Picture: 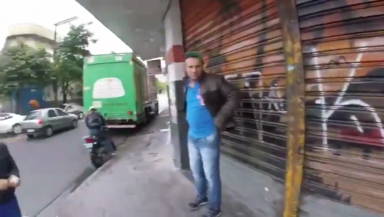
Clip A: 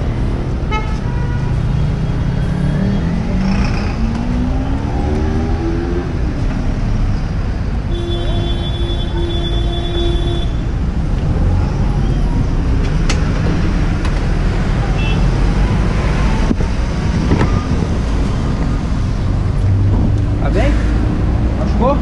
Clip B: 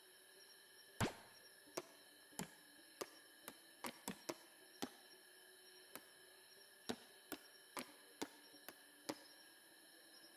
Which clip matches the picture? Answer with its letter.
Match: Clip A